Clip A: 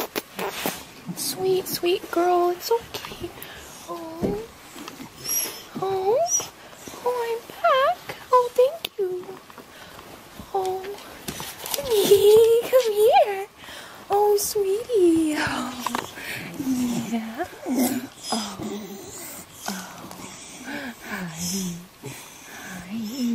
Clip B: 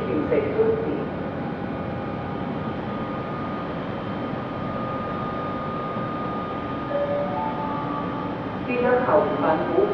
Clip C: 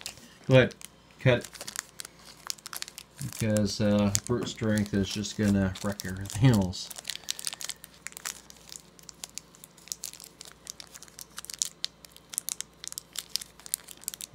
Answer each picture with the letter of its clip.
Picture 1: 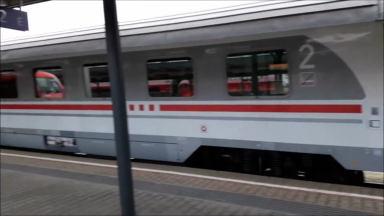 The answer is B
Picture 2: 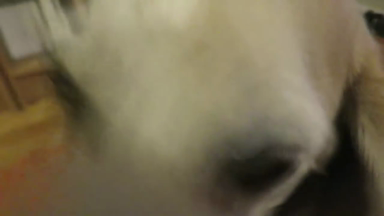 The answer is A